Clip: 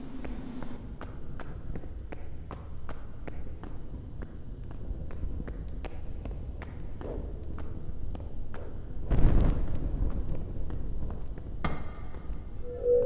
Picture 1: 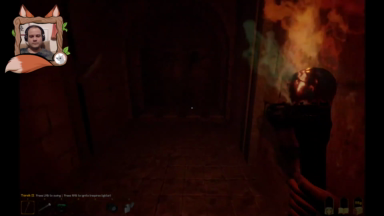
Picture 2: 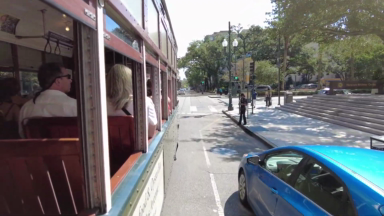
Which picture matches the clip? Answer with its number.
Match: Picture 1